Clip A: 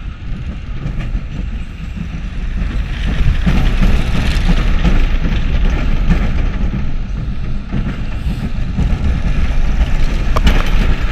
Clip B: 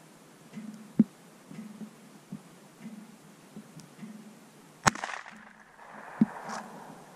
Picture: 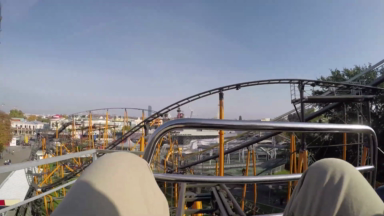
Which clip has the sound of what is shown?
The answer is A